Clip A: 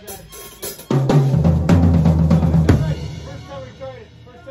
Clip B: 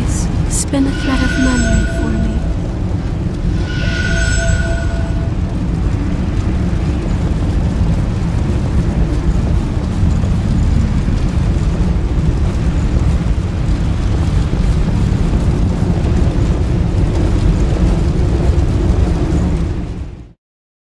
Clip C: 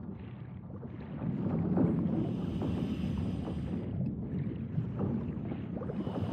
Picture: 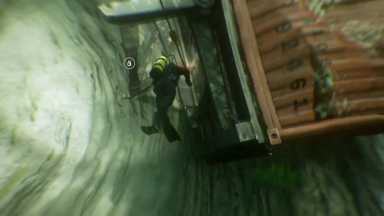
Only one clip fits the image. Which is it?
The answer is C